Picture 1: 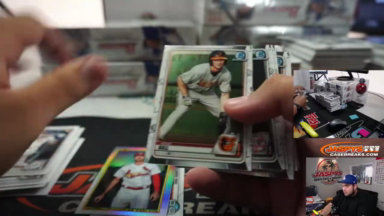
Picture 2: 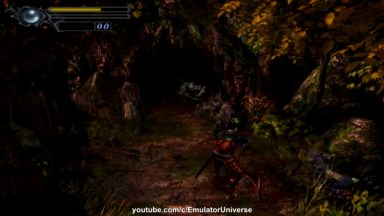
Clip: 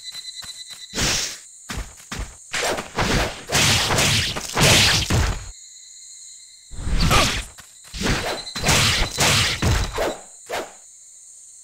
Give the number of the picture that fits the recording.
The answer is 2